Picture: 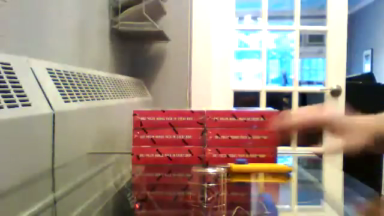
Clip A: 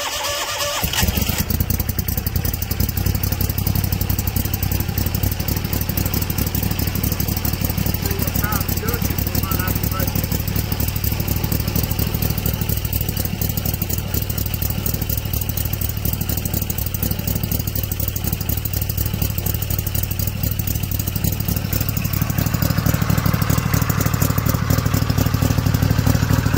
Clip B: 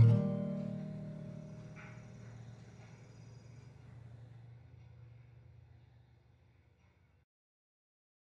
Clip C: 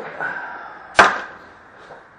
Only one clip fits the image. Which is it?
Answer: C